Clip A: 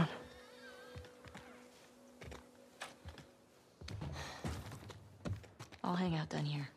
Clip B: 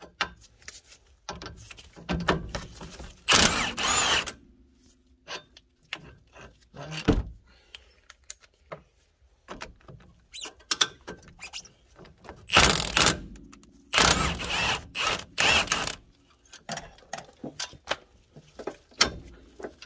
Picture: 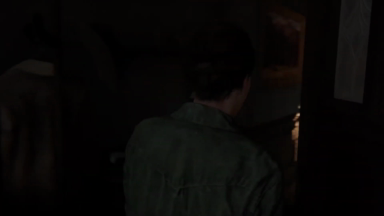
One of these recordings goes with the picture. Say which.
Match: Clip A